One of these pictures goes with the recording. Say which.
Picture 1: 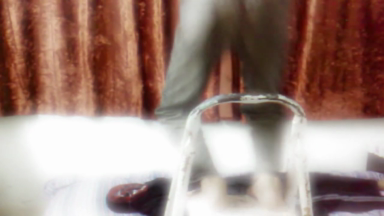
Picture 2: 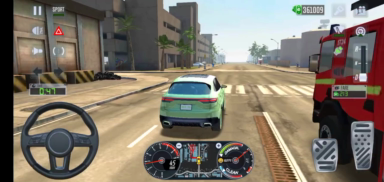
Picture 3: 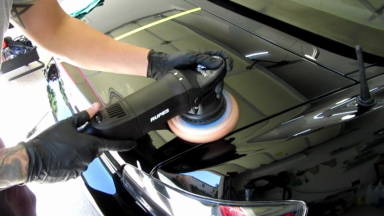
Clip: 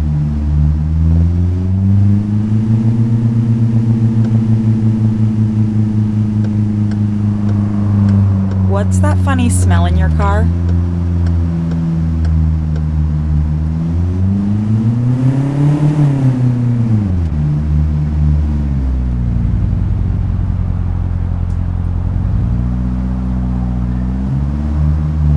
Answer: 2